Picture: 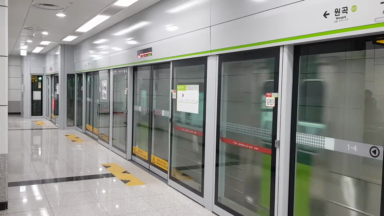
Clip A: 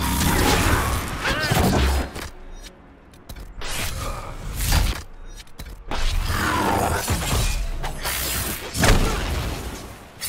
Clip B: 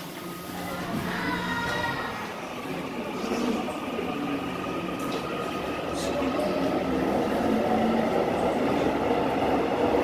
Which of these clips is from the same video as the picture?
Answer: B